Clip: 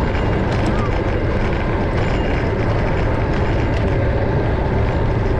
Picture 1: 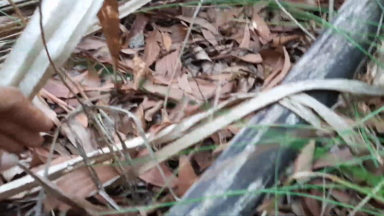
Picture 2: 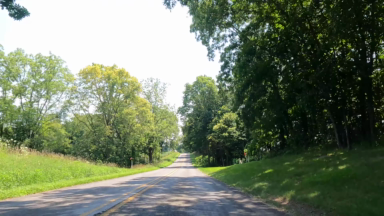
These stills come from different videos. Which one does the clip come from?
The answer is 2